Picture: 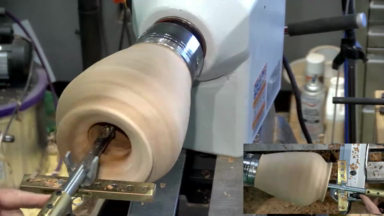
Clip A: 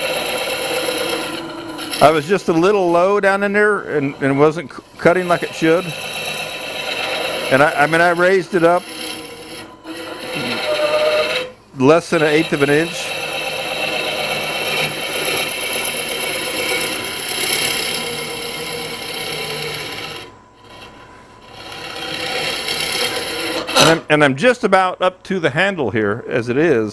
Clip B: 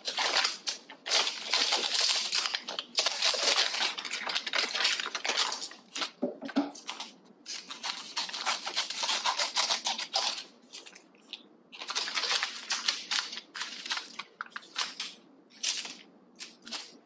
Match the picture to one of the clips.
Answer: A